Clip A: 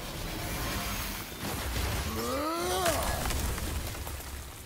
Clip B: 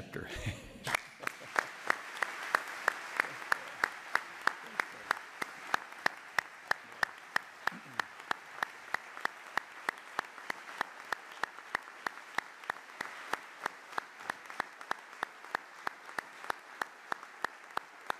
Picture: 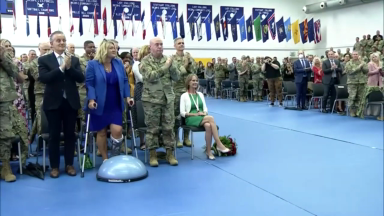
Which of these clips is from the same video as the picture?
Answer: B